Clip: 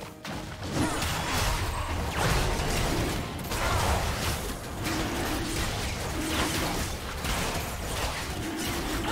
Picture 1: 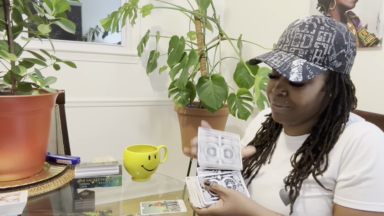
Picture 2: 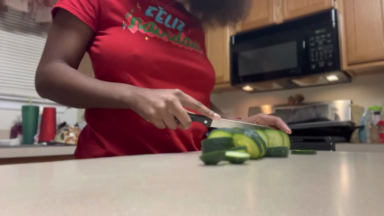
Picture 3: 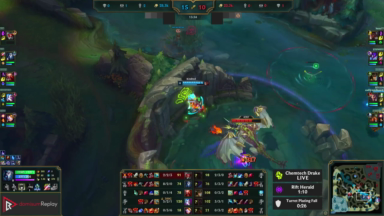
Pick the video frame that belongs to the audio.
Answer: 3